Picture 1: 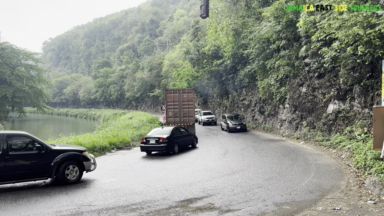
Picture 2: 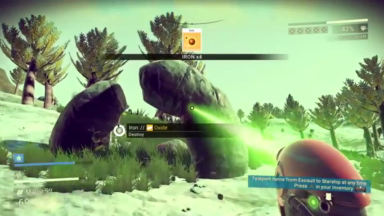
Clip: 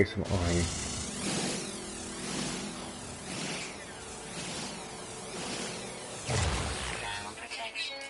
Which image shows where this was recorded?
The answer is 2